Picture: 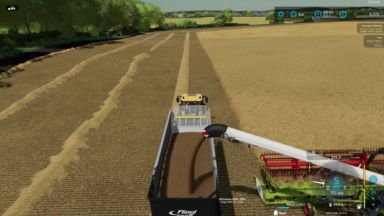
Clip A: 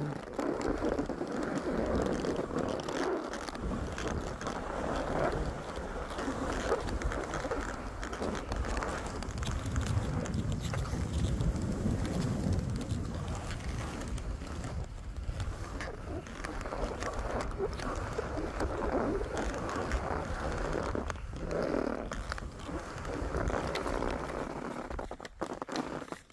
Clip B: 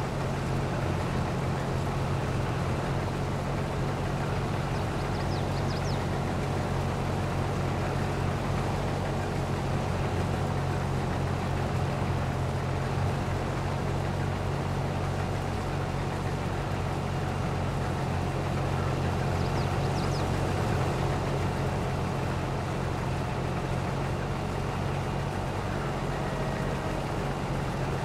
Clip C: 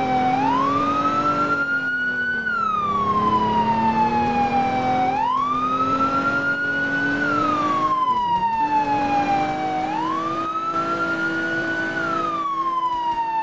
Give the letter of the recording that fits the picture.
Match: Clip B